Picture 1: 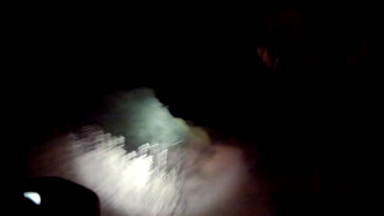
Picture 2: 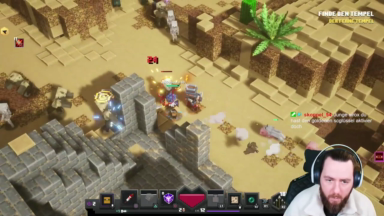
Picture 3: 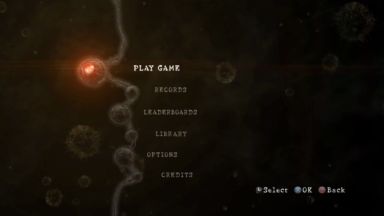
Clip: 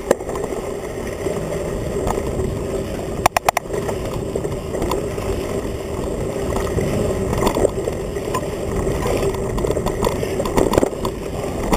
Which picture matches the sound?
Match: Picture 1